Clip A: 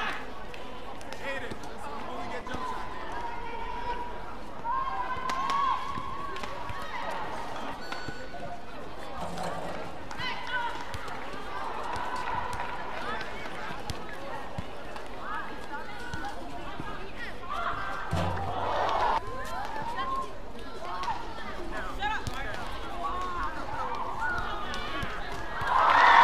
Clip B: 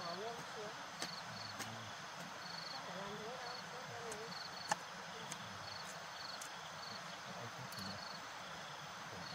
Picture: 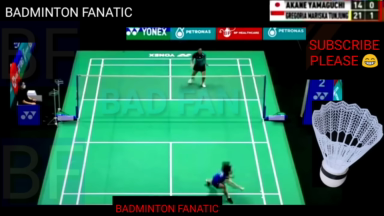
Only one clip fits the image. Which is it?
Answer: A